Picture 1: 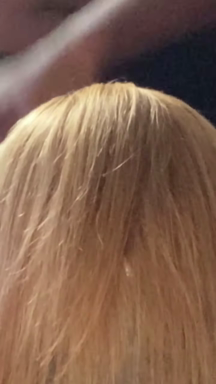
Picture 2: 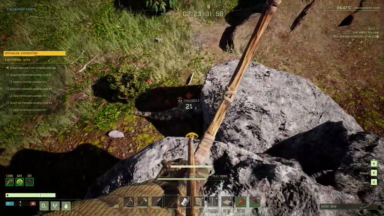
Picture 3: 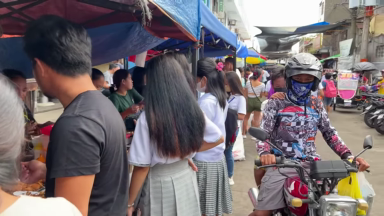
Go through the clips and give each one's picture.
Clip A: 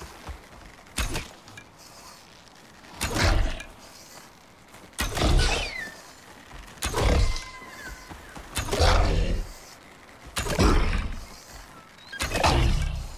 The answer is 2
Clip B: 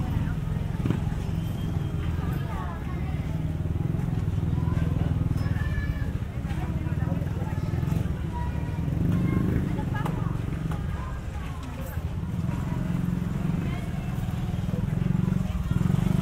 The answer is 3